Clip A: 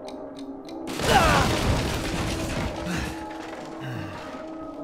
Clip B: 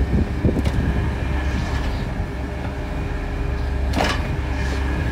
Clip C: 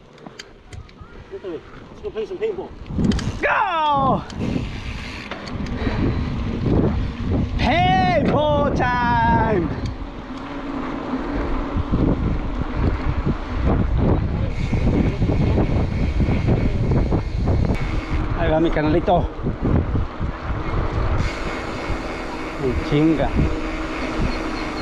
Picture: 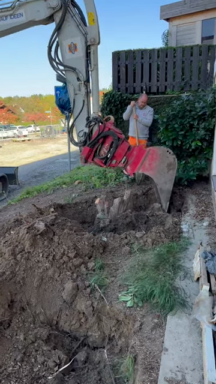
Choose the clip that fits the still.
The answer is B